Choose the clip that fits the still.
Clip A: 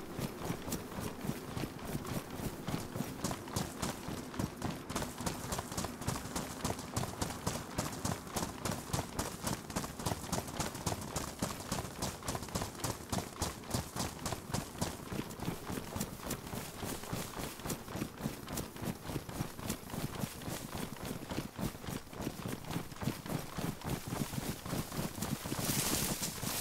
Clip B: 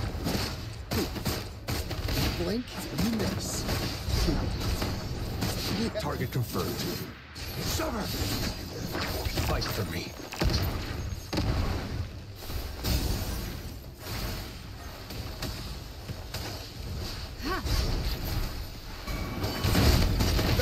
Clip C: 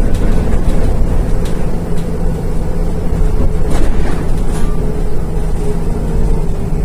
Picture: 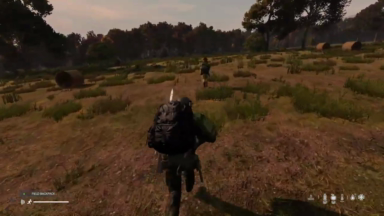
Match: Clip A